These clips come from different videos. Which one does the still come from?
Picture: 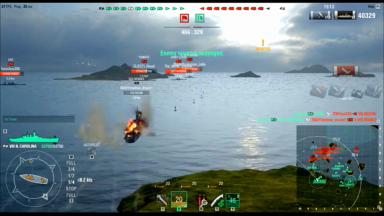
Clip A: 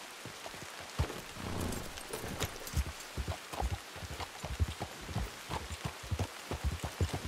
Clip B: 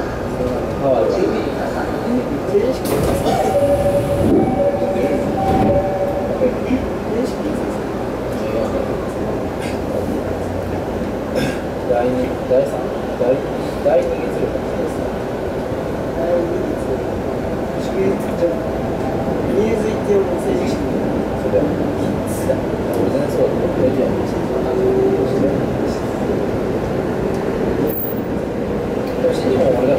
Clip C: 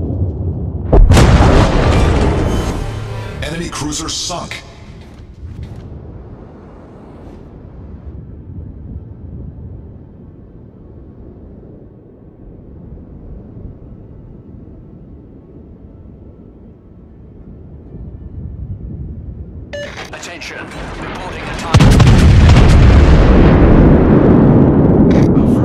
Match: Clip C